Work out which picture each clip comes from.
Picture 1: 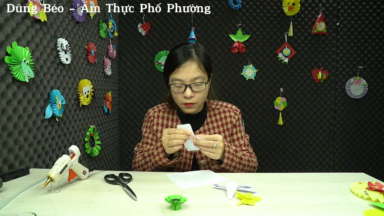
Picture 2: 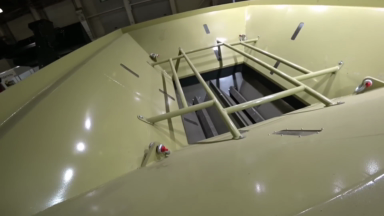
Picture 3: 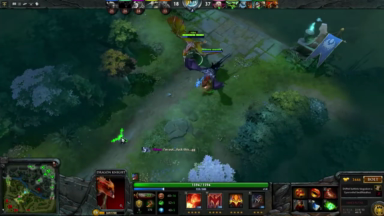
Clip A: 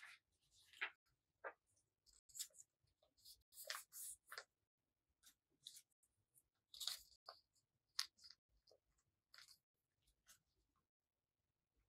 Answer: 1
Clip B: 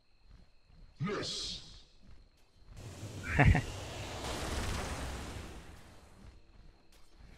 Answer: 3